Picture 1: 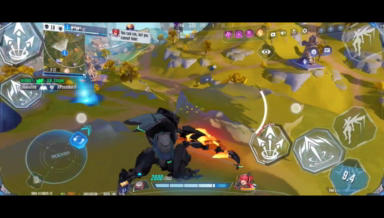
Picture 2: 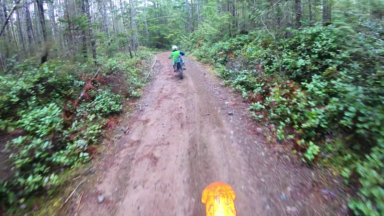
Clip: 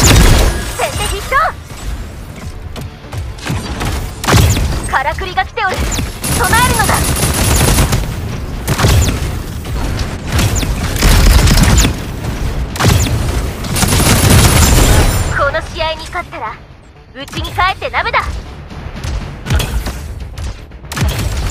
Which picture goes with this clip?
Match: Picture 1